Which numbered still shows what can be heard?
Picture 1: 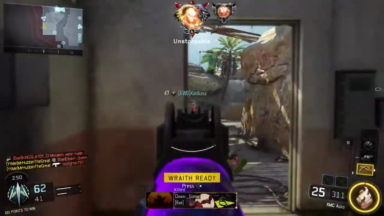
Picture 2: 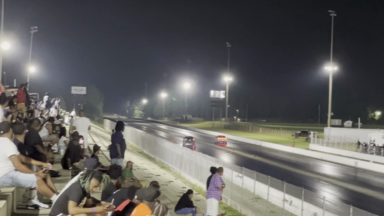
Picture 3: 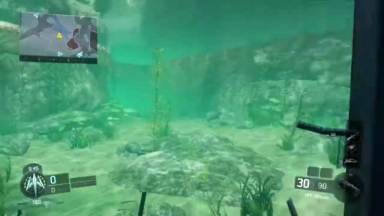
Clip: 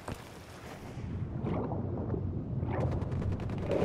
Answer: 3